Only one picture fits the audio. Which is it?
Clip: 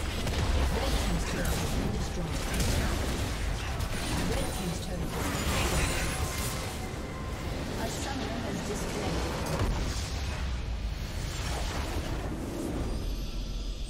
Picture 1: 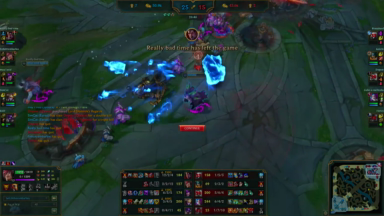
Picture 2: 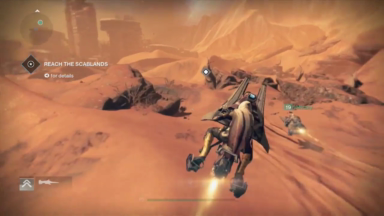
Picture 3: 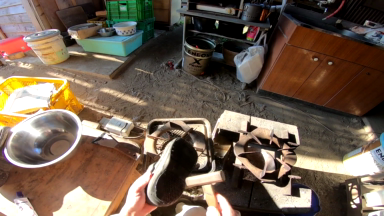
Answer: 1